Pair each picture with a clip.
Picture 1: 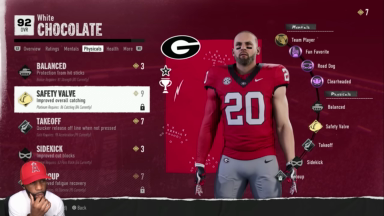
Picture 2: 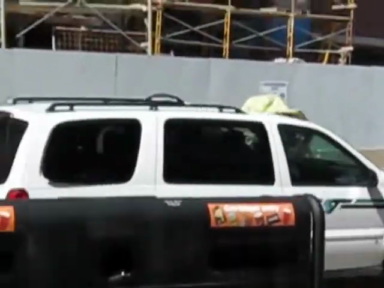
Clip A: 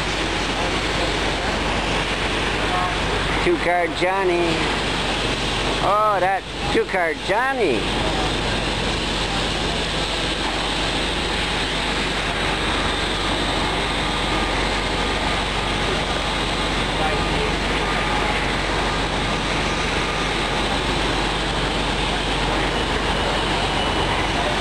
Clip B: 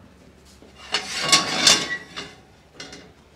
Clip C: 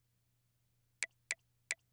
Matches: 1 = C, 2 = A